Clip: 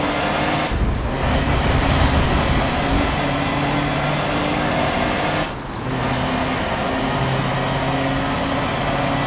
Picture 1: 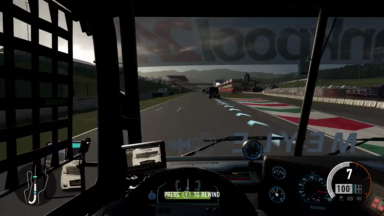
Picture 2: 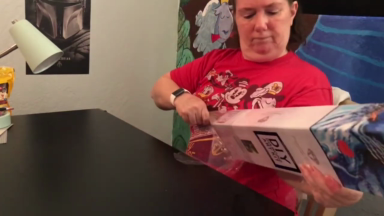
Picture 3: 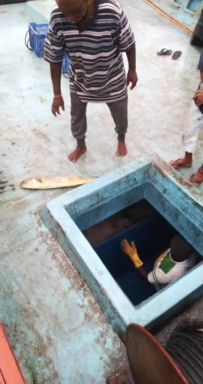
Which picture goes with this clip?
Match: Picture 1